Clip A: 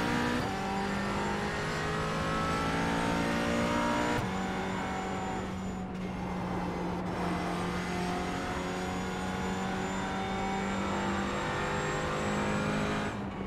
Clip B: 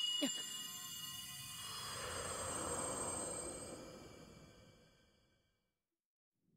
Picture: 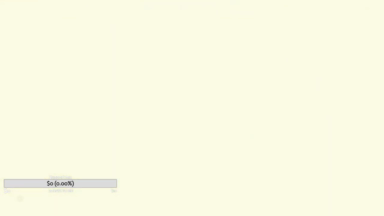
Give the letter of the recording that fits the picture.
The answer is B